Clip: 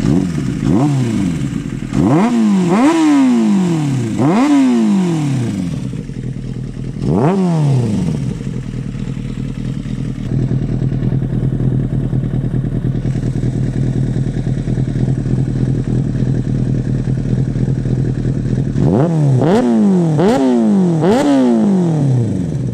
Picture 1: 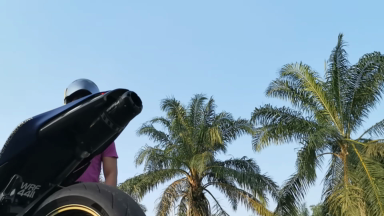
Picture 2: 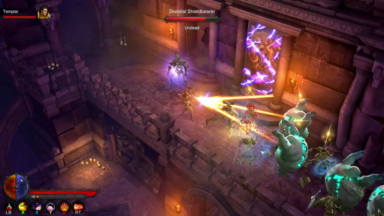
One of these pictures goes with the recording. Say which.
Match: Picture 1